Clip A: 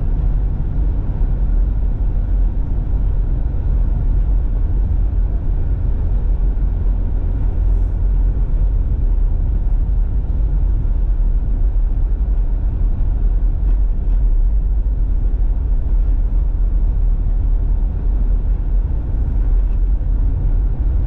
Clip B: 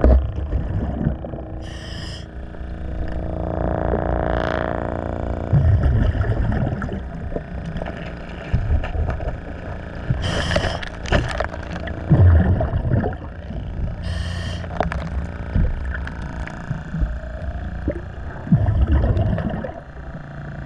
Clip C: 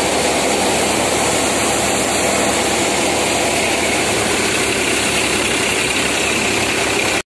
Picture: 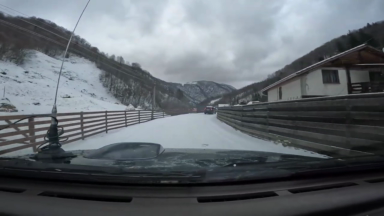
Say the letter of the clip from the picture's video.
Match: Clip A